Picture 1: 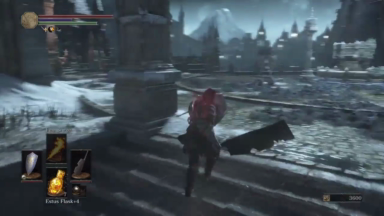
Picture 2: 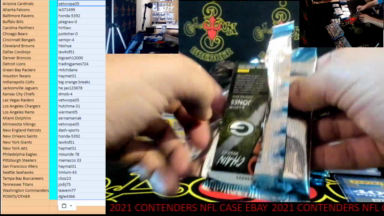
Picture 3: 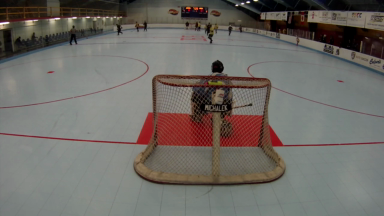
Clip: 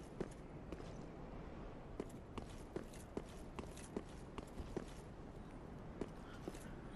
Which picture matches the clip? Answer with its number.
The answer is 1